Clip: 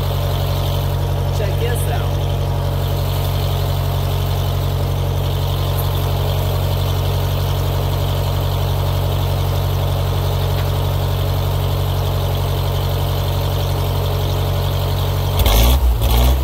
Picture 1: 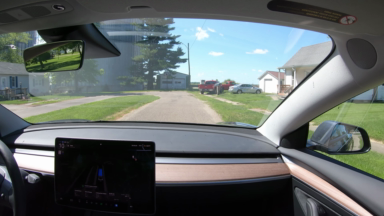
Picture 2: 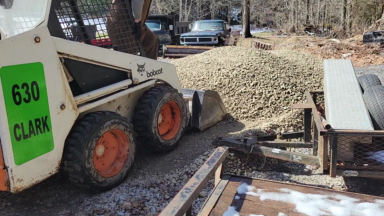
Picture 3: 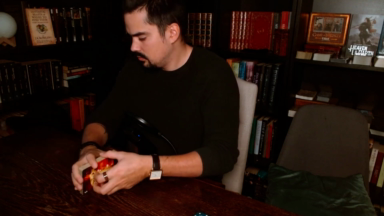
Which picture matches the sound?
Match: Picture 2